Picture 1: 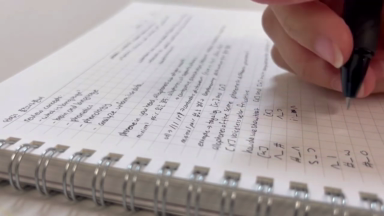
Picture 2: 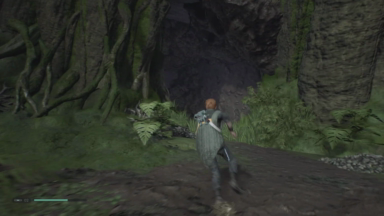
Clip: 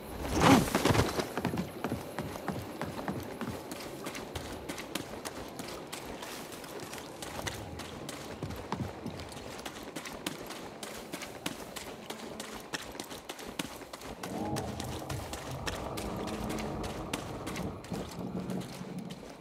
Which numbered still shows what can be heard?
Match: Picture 2